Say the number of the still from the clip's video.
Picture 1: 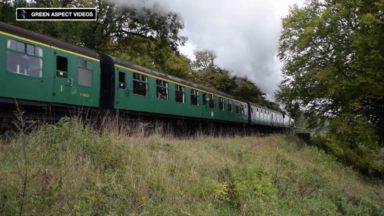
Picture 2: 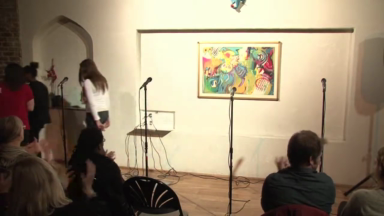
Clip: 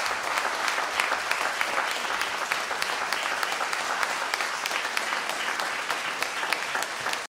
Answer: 2